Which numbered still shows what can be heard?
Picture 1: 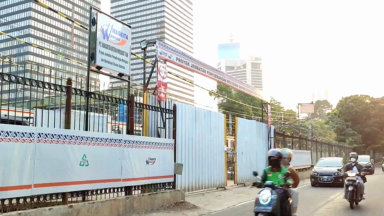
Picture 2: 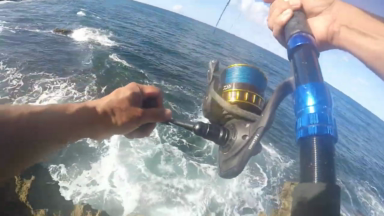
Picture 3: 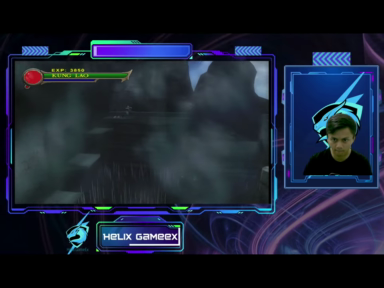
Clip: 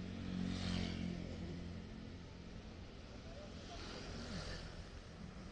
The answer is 1